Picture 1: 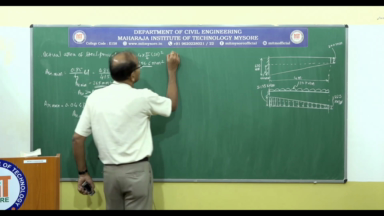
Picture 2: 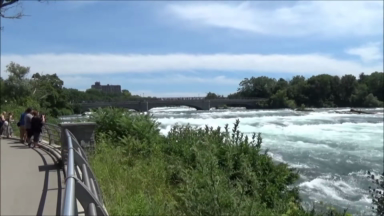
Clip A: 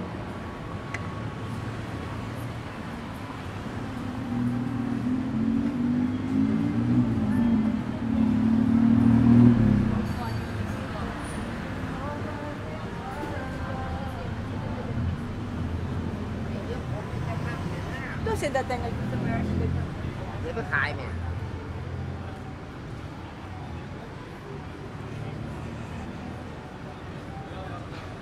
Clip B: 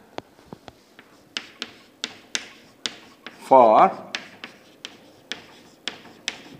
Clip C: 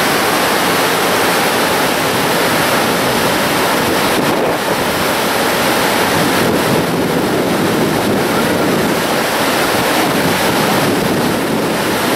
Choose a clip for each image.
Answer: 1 B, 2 C